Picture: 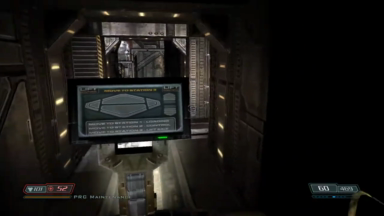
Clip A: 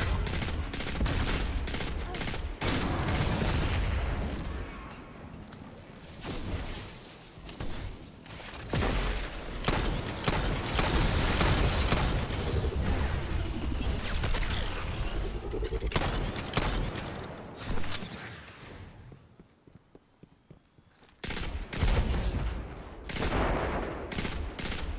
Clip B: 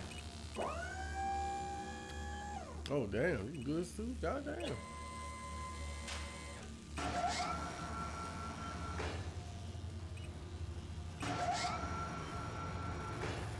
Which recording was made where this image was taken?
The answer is B